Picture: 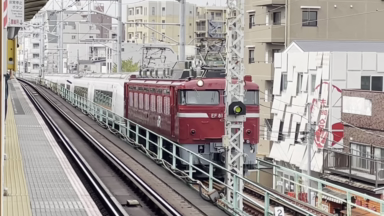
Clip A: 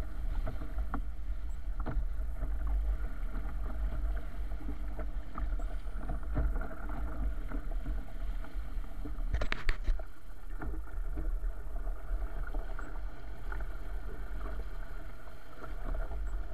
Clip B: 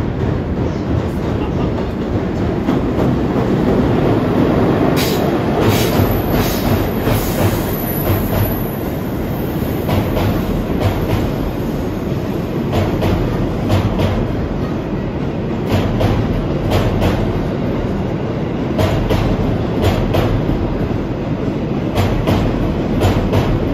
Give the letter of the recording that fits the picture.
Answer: B